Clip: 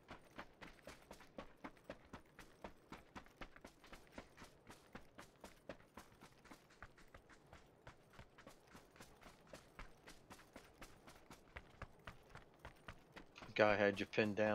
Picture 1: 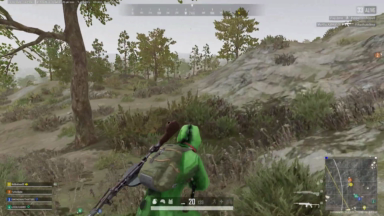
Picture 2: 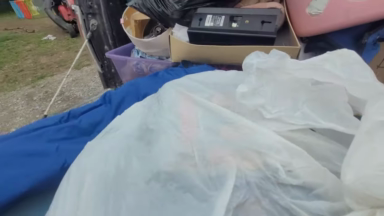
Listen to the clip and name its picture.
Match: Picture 1